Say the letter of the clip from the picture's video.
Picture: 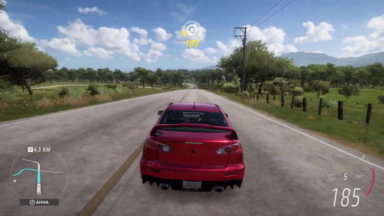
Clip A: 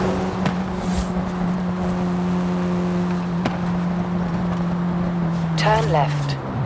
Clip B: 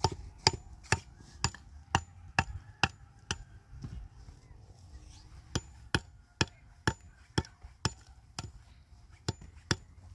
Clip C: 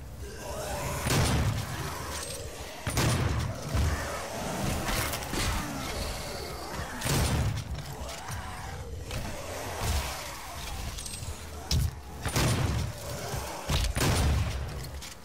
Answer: A